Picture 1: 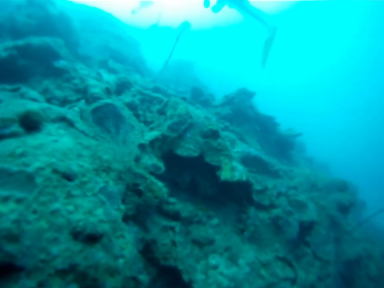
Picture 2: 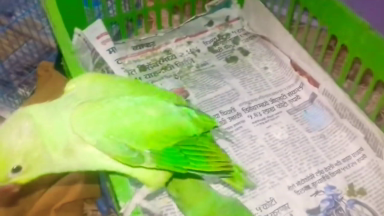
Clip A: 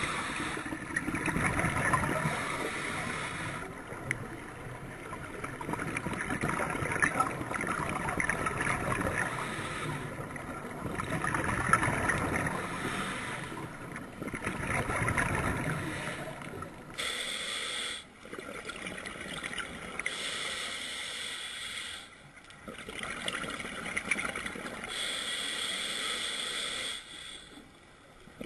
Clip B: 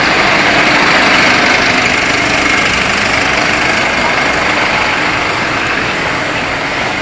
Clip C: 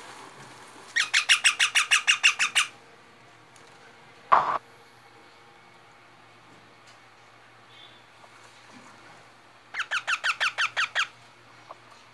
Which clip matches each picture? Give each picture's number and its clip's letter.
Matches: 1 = A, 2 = C